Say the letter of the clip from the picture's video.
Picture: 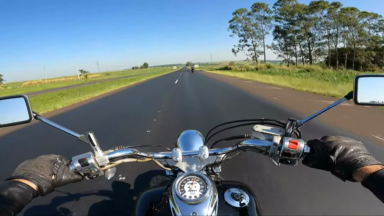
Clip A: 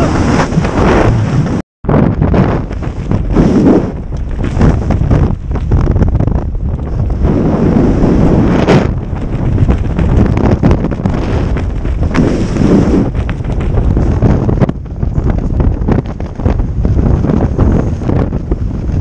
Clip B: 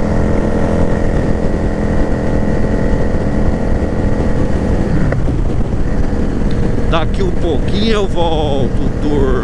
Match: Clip B